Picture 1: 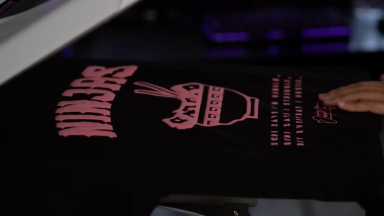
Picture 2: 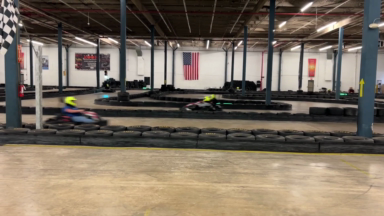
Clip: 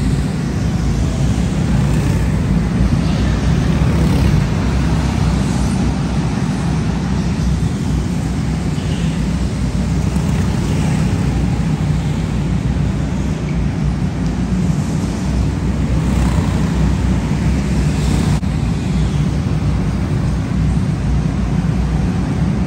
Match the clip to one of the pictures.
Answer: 2